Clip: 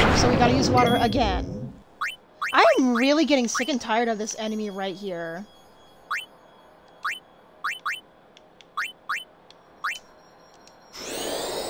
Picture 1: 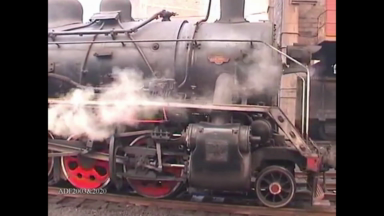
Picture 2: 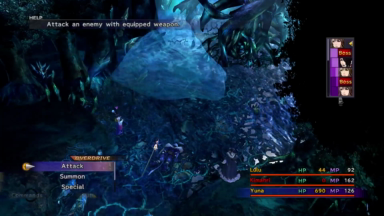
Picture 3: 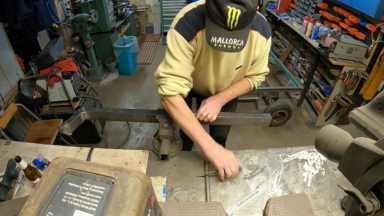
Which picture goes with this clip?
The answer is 2